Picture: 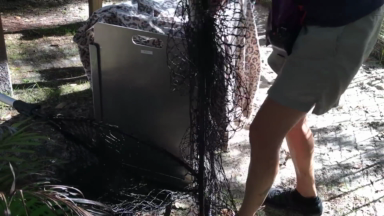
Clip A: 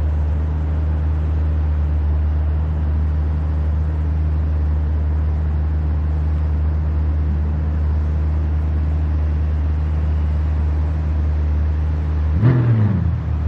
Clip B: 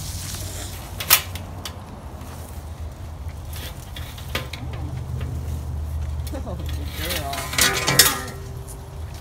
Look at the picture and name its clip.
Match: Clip B